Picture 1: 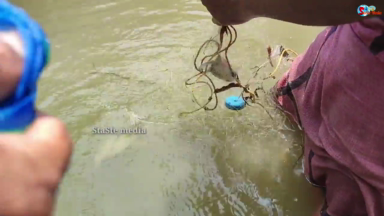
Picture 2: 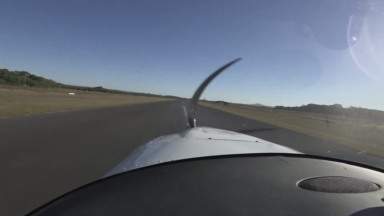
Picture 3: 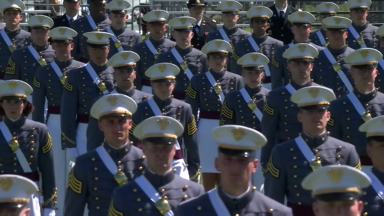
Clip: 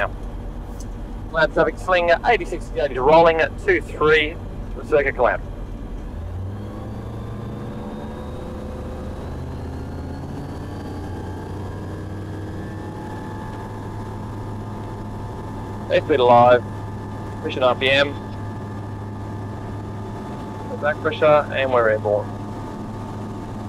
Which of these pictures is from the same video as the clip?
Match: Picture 2